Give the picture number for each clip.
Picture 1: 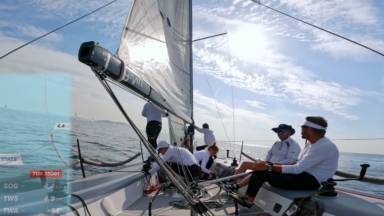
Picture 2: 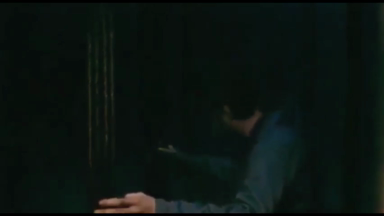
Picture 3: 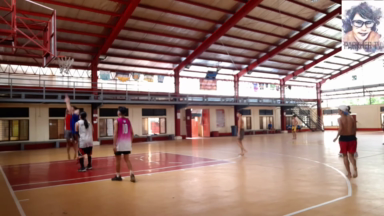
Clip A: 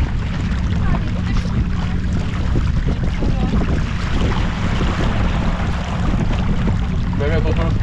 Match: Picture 1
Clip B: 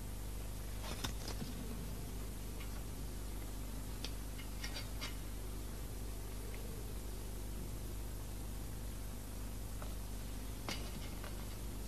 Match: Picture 2